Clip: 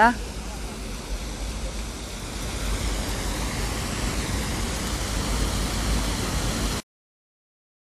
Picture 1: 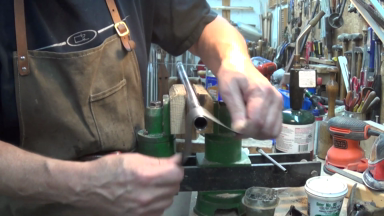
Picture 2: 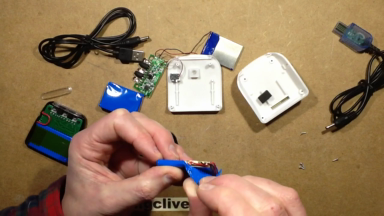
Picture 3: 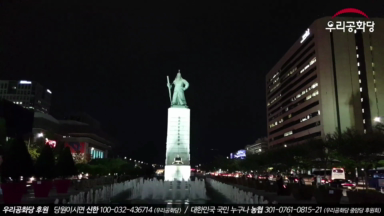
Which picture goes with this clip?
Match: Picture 3